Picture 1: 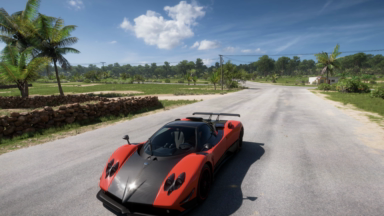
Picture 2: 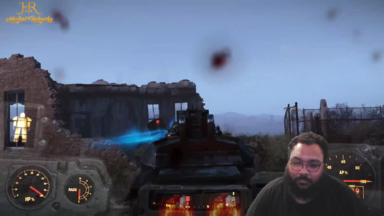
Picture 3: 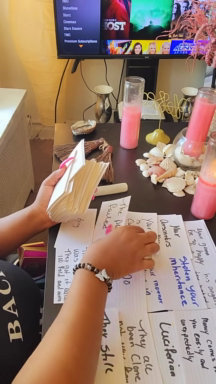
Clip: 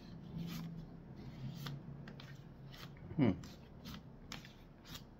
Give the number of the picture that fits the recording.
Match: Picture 3